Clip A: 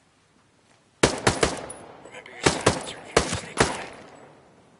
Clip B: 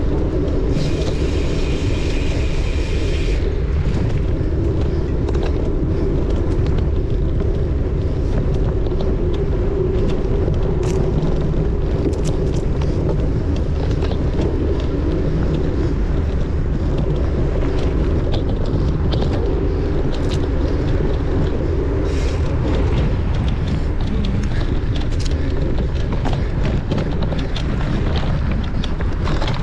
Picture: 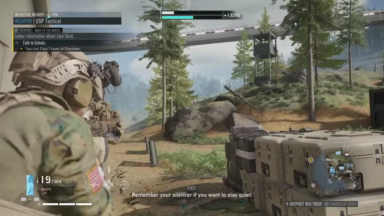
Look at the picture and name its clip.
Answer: A